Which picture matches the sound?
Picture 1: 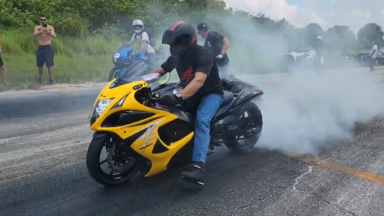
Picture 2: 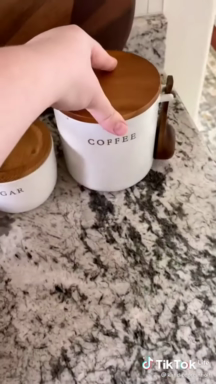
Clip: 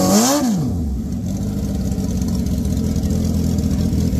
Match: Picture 1